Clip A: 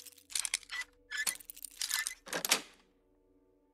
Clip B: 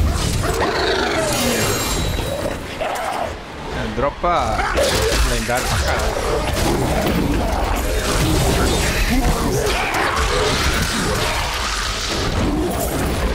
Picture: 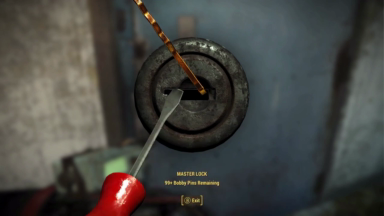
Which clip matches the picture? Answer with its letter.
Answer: A